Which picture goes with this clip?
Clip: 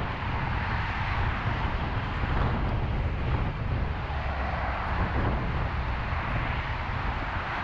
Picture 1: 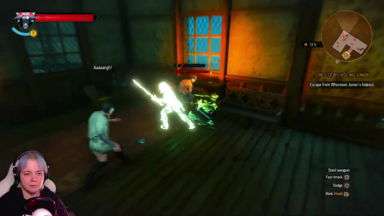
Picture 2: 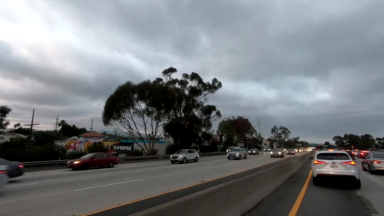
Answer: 2